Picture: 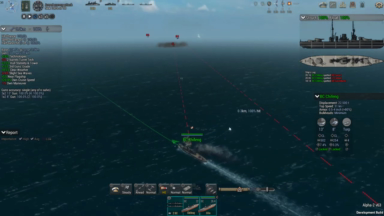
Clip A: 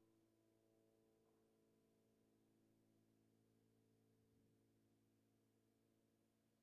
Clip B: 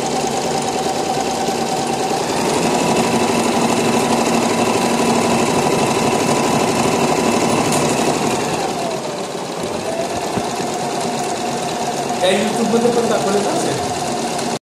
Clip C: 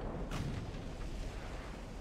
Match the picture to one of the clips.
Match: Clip C